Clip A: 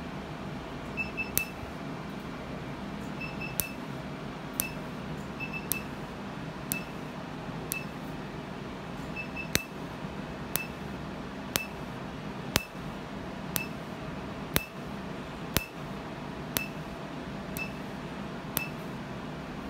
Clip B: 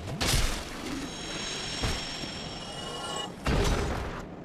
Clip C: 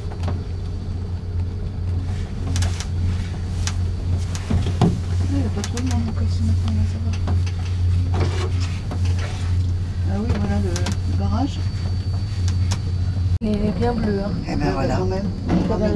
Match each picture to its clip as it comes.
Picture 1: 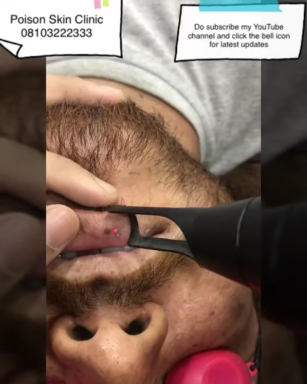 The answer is A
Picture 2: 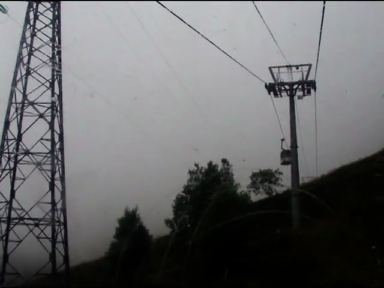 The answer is C